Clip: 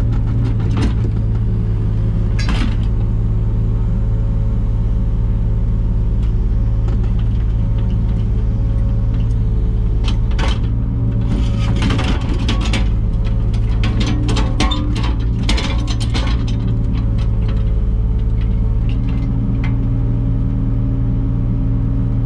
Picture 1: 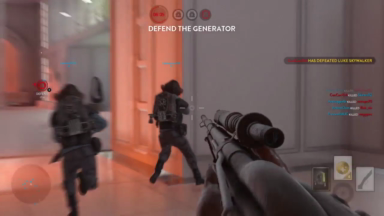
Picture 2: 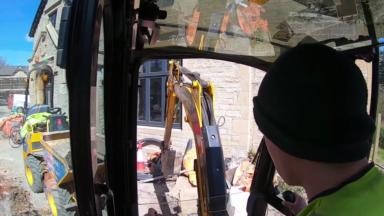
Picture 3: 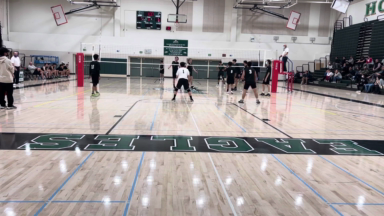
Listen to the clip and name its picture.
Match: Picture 2